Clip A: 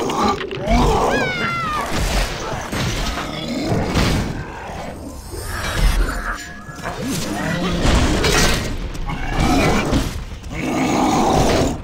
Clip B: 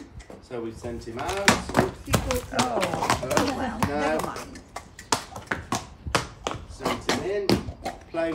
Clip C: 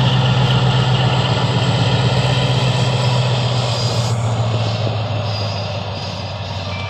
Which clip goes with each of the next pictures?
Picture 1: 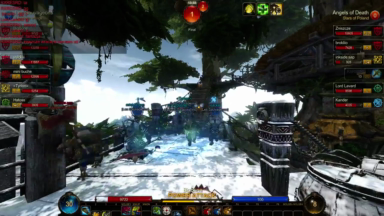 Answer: A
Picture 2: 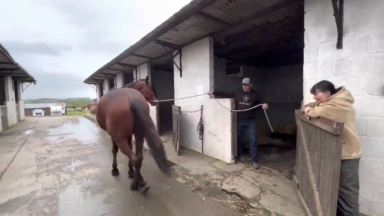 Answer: B